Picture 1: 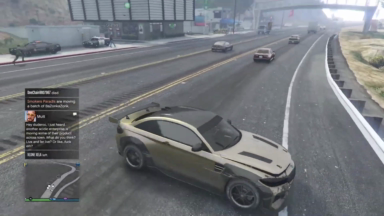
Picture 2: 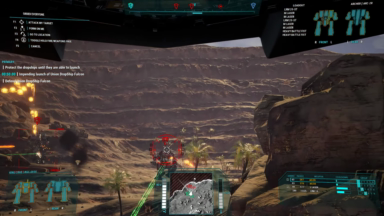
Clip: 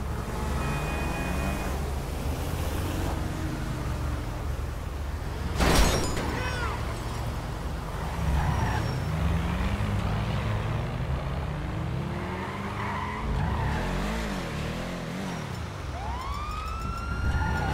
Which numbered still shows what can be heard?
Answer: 1